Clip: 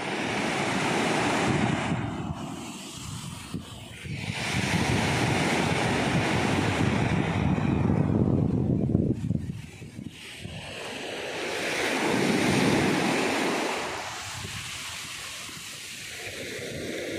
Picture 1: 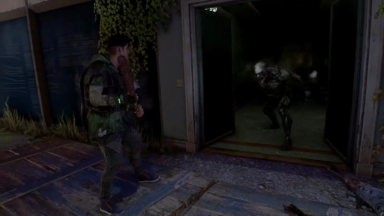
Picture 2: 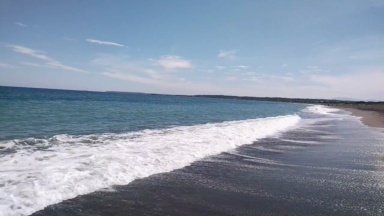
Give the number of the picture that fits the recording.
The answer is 2